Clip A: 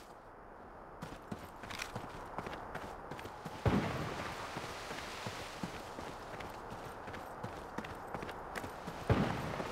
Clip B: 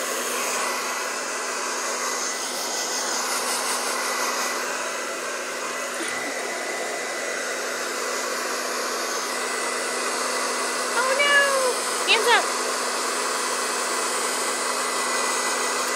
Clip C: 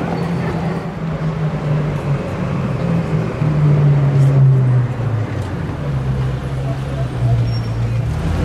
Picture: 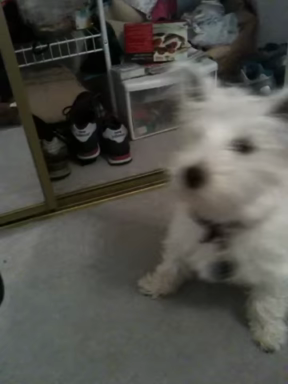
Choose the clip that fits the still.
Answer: B